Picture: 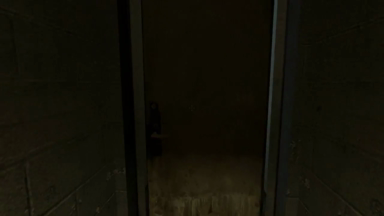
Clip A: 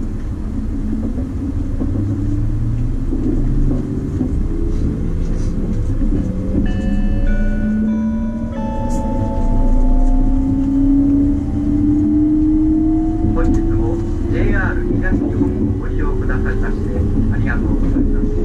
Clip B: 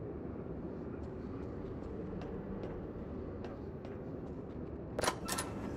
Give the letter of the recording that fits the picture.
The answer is B